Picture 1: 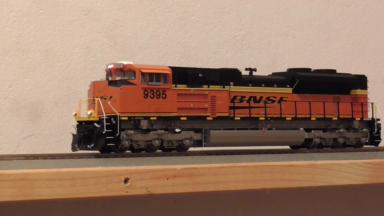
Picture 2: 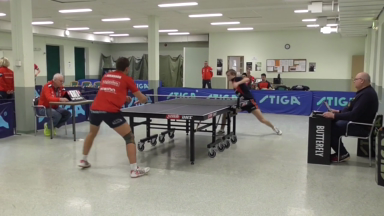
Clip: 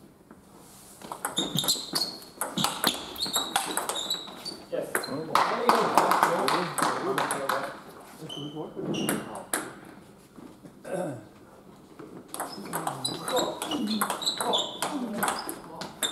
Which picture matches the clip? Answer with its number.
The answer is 2